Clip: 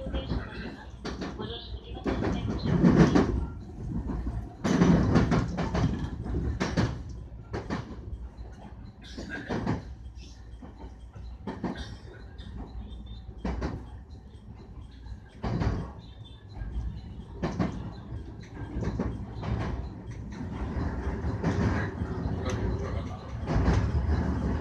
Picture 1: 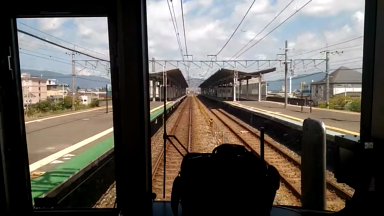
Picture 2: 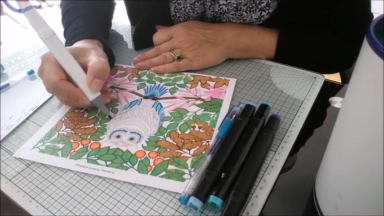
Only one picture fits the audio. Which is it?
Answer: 1